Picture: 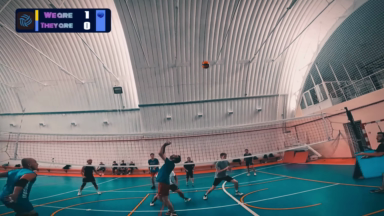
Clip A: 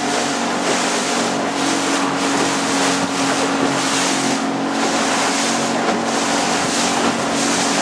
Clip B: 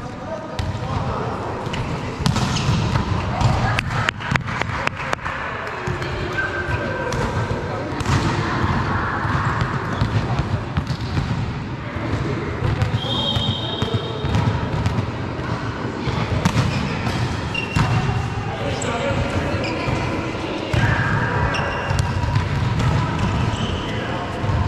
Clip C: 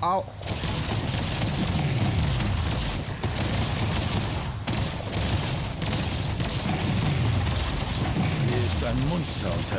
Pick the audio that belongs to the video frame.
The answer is B